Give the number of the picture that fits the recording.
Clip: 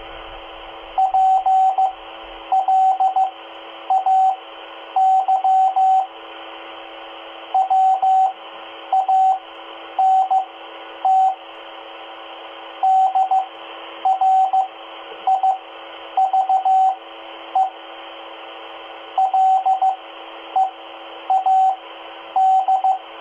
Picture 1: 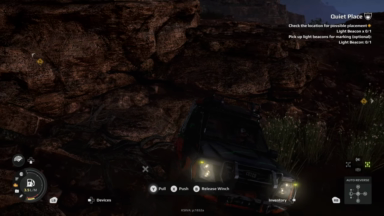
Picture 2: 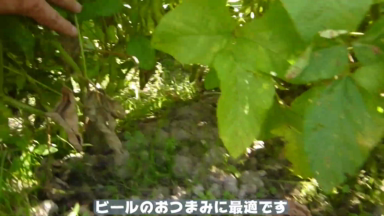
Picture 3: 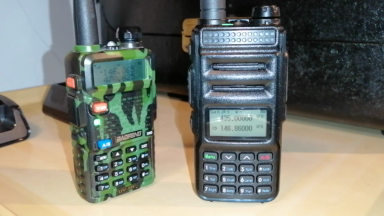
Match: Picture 3